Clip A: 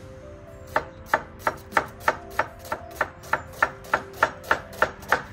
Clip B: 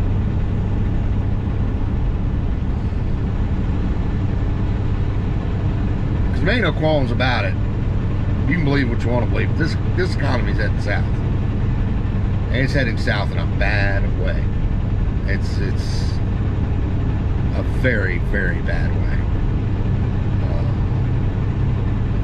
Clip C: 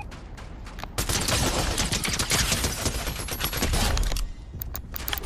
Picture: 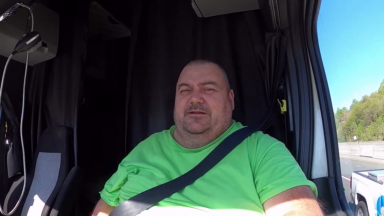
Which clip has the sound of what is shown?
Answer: B